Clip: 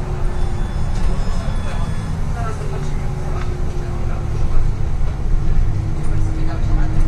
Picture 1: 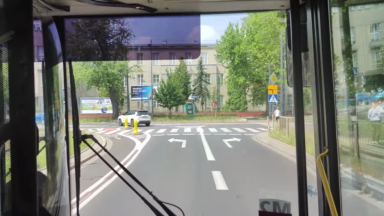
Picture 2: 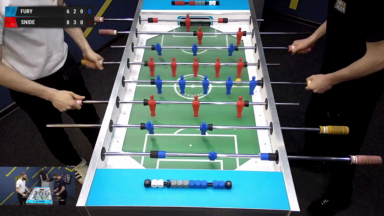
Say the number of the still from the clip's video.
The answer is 1